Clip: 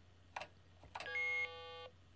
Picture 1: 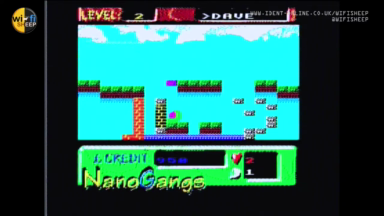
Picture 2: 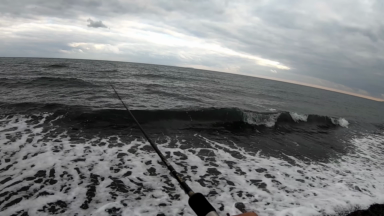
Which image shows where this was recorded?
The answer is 1